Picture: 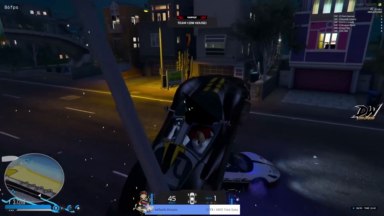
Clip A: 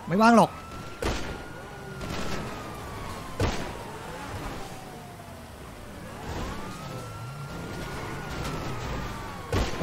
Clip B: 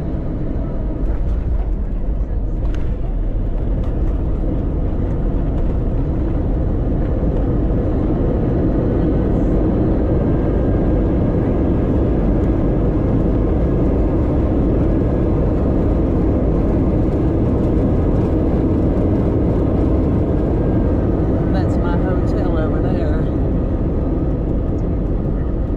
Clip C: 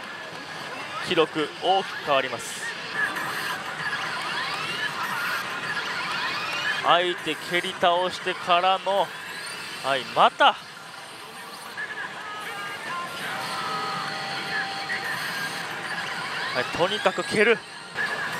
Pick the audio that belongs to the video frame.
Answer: A